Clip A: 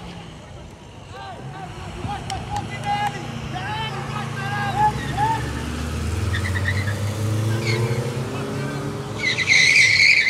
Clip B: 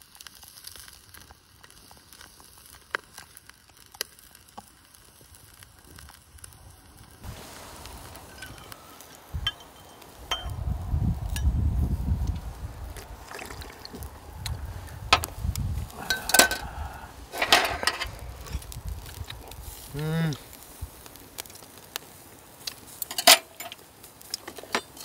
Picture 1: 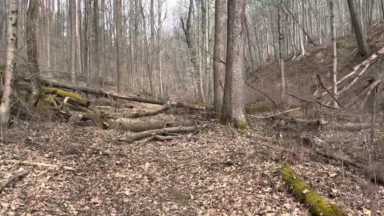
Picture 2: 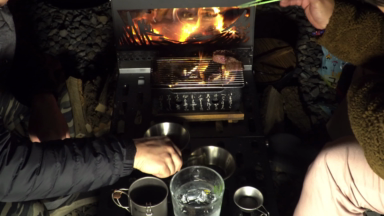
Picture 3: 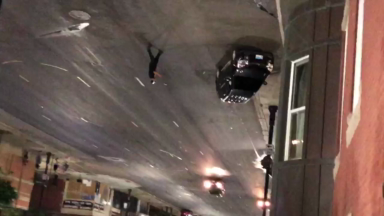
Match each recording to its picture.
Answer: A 3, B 2